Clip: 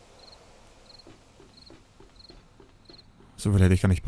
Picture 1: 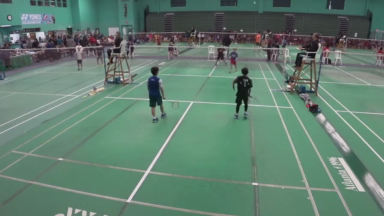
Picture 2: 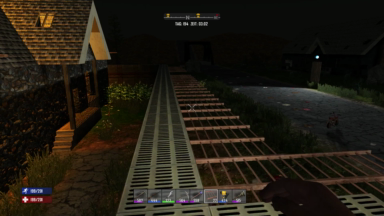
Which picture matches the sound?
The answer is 2